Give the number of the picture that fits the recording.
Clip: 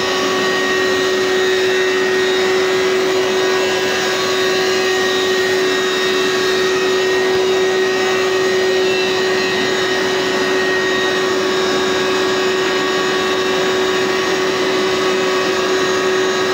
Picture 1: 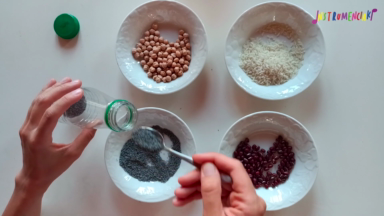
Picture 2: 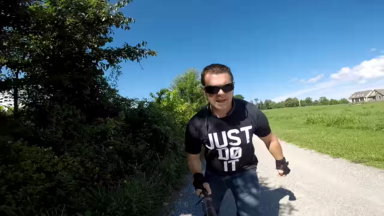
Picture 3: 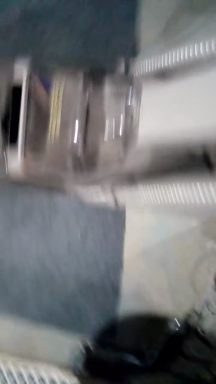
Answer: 3